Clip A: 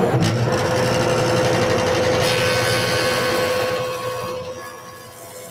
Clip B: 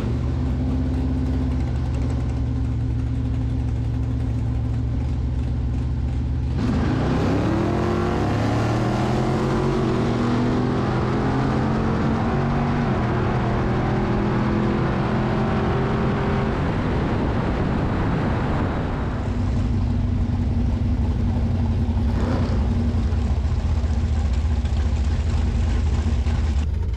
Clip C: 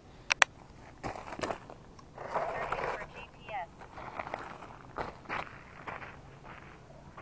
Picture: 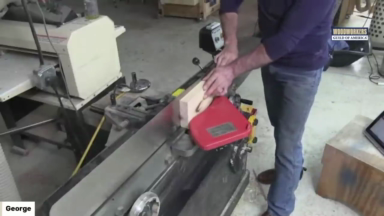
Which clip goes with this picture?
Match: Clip A